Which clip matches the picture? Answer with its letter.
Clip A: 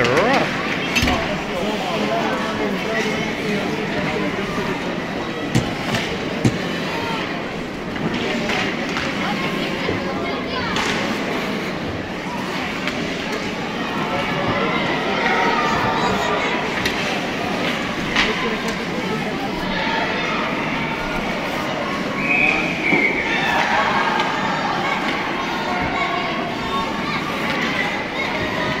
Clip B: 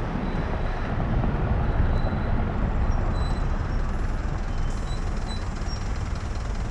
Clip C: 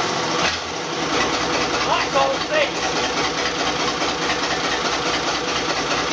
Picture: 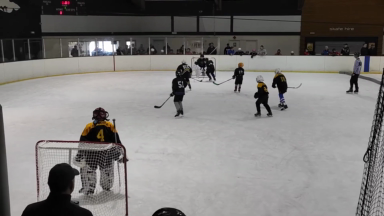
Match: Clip A